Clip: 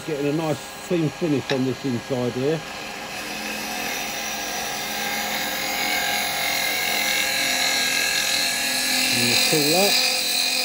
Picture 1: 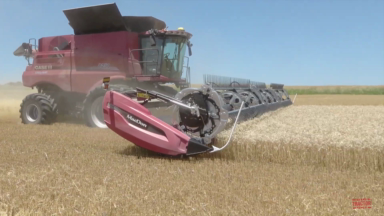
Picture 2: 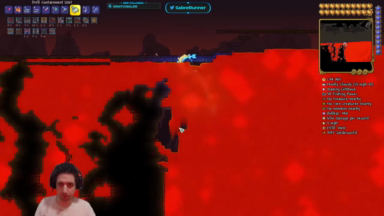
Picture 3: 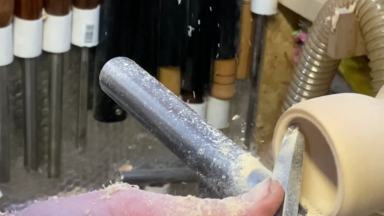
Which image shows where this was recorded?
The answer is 3